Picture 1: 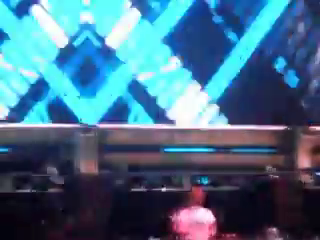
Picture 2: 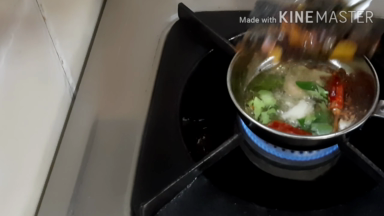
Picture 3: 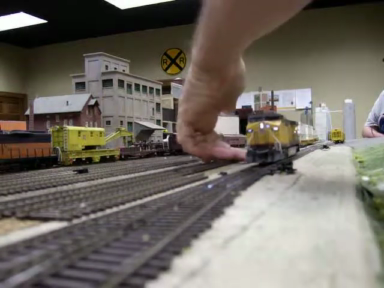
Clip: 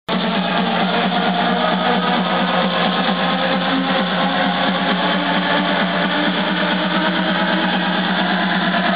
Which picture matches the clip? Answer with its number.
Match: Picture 1